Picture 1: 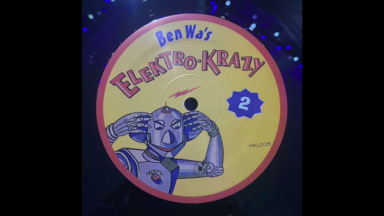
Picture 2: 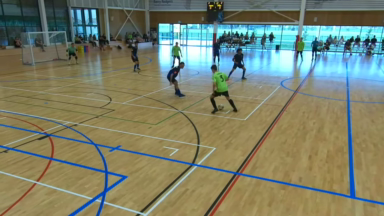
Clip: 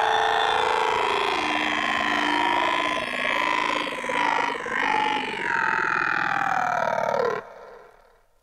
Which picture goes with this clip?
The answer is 1